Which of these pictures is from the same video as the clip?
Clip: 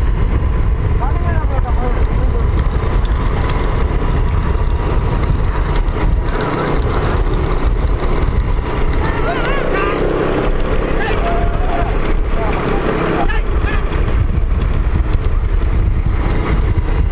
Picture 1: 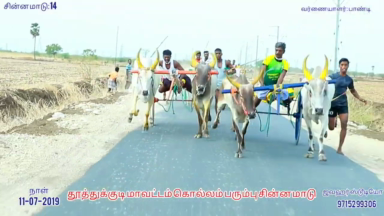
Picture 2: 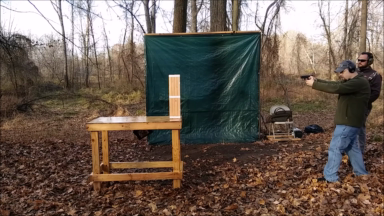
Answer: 1